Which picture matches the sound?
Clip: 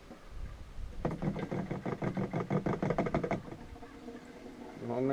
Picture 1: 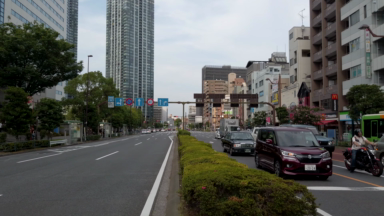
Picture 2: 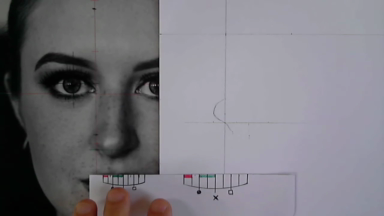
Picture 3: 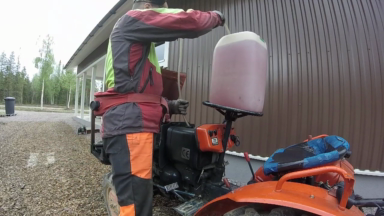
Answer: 3